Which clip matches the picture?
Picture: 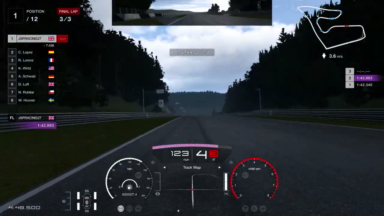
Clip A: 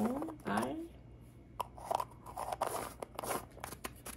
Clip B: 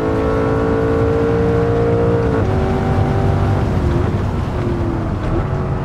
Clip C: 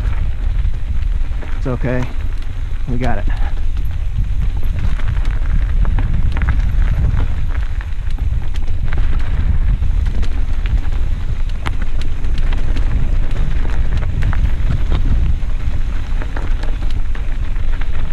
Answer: B